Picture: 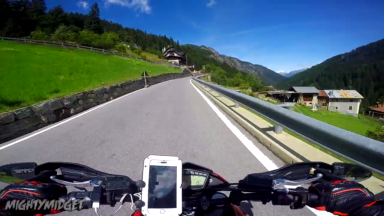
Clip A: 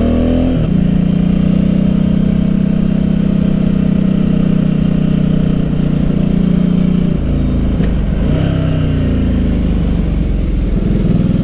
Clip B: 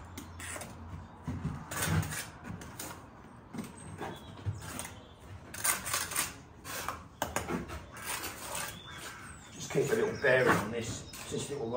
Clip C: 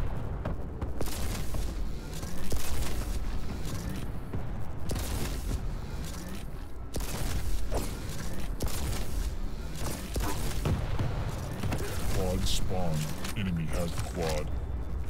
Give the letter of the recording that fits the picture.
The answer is A